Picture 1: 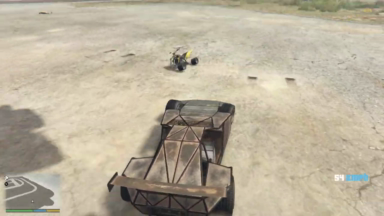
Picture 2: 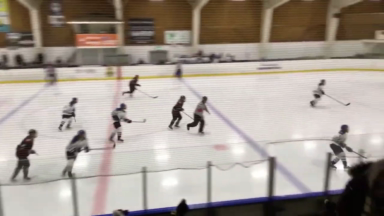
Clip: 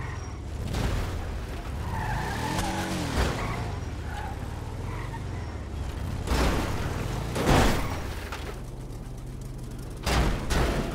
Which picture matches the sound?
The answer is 1